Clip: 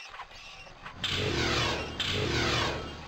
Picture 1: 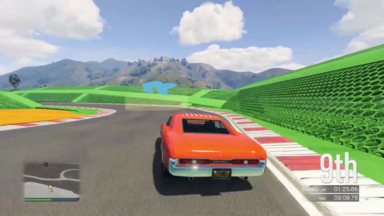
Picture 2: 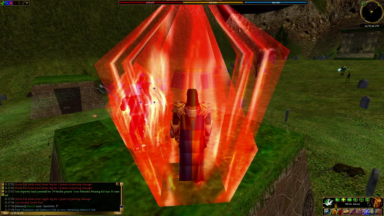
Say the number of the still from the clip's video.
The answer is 2